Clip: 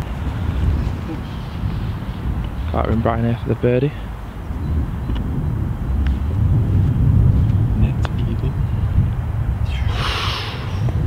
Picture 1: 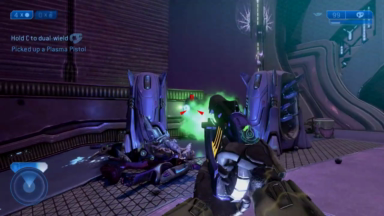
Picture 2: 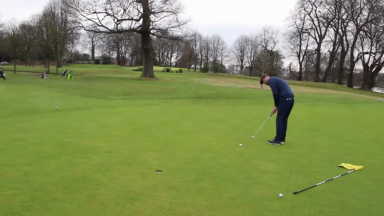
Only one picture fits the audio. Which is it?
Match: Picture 2